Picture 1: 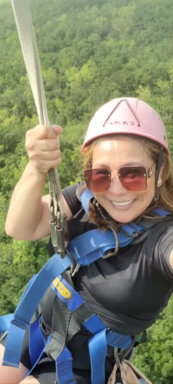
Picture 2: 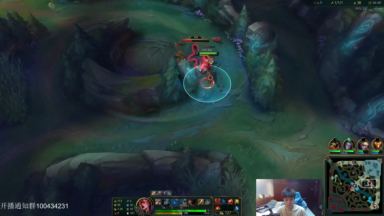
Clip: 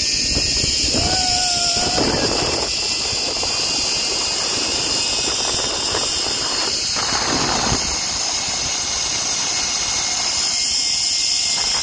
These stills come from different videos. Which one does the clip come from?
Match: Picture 1